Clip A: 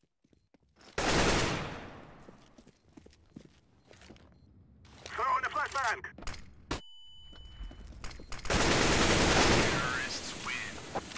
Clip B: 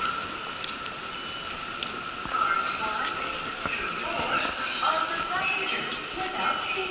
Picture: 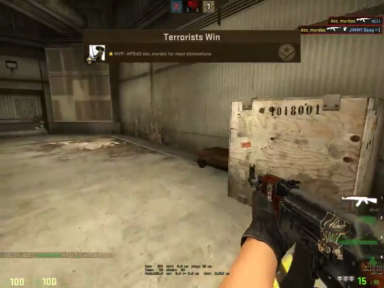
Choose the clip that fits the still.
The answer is A